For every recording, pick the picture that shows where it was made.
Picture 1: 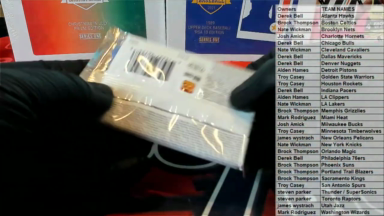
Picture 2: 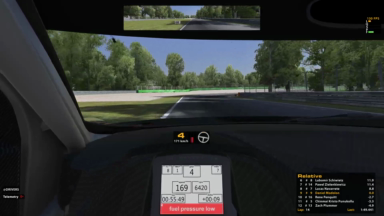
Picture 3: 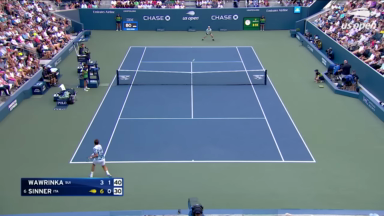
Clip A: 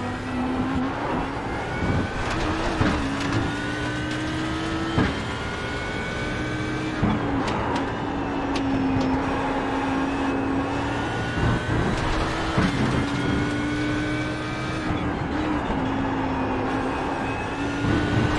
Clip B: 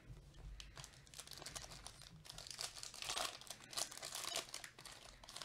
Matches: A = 2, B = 1